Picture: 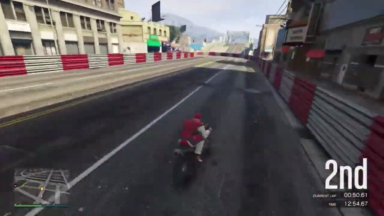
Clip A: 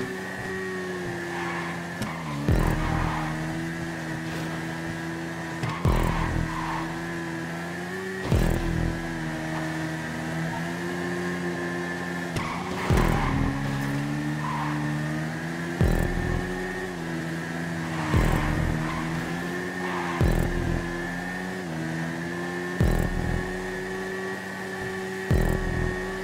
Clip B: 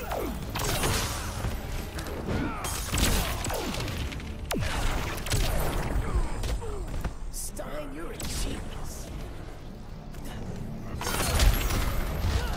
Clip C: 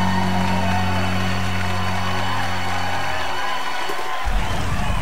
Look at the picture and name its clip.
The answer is A